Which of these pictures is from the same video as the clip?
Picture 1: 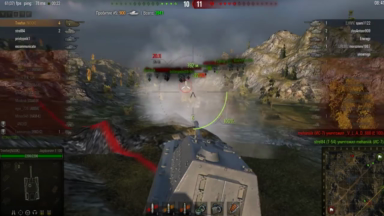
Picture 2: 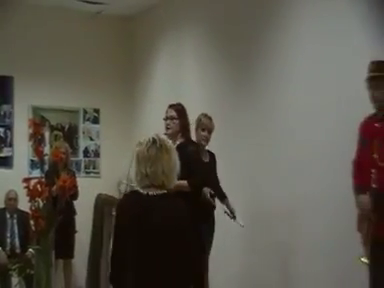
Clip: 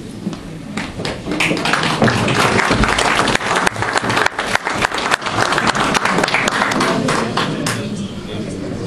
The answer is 2